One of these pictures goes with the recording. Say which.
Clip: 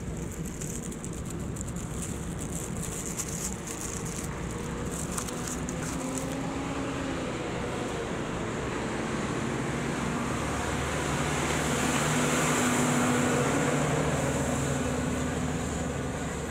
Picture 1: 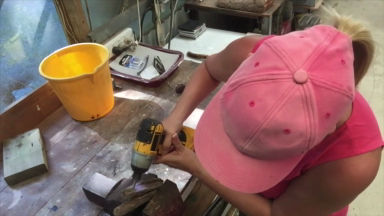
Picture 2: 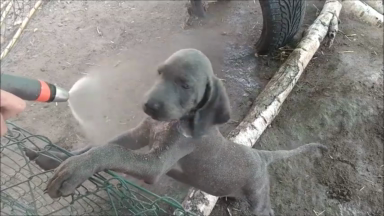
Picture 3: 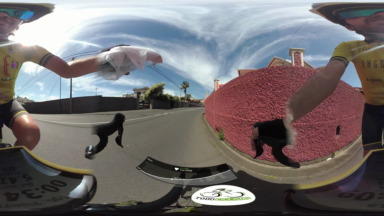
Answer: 3